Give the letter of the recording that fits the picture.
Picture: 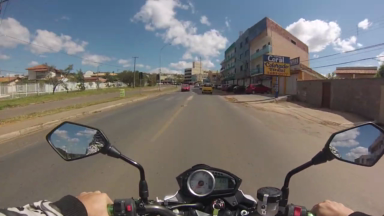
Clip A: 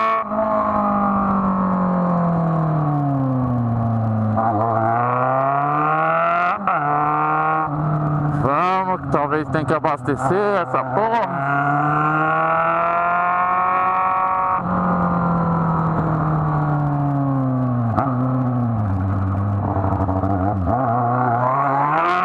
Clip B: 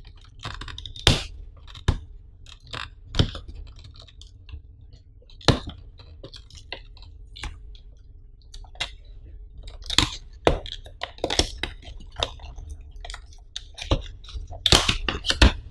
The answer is A